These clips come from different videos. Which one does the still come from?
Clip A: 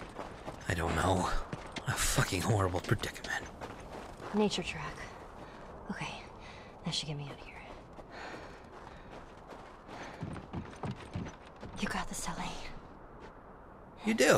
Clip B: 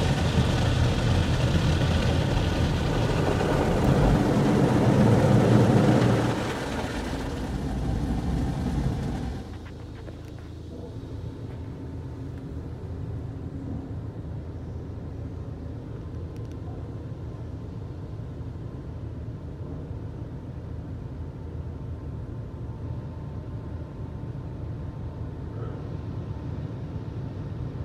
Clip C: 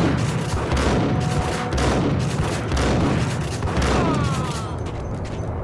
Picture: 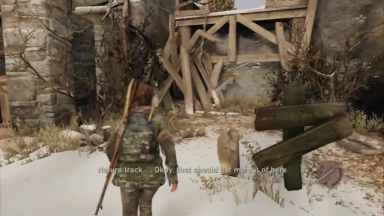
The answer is A